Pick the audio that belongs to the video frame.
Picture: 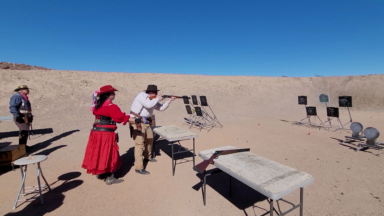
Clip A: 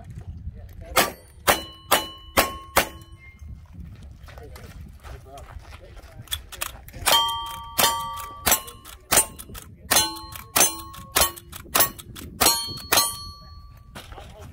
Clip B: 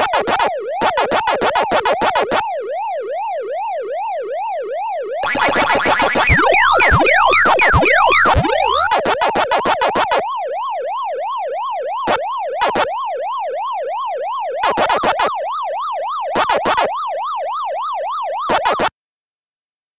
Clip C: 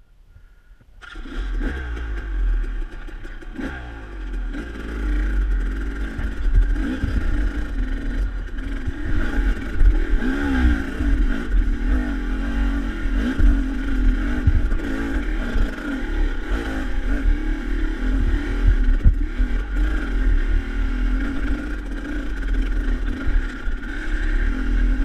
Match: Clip A